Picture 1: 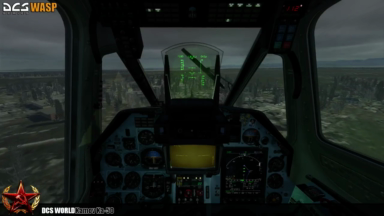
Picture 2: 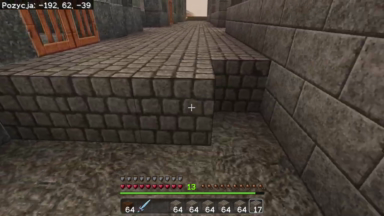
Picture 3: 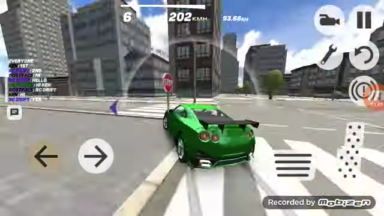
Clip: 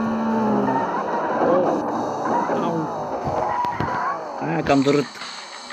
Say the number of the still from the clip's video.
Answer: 3